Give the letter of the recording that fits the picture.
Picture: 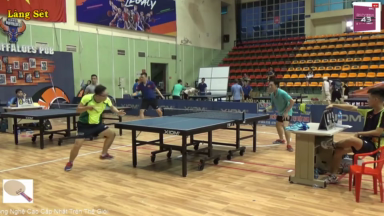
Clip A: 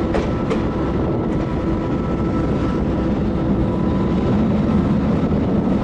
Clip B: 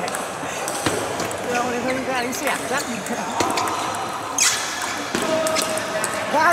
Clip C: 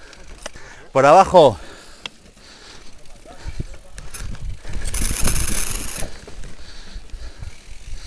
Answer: B